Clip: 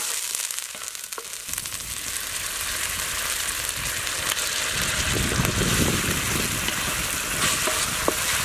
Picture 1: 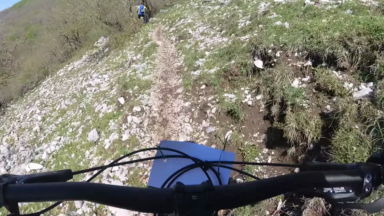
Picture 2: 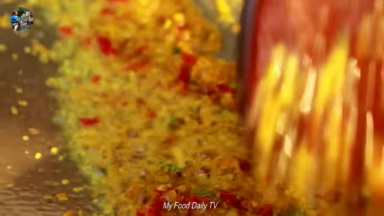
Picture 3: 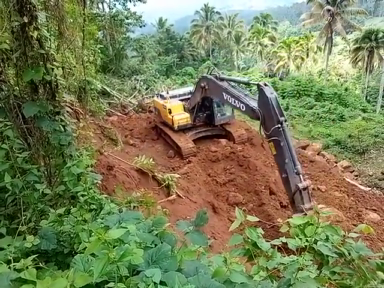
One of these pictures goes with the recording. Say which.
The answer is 2